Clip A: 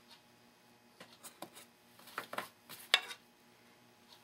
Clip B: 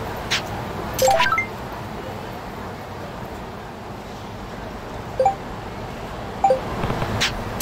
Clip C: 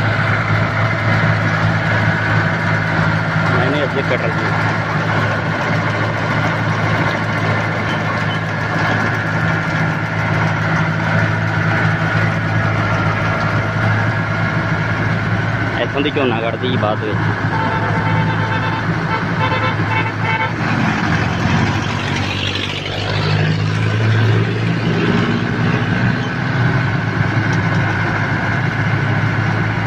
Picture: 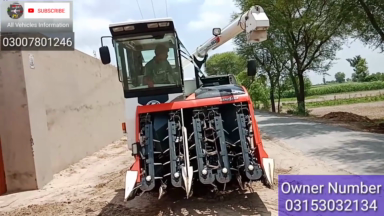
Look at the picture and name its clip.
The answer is C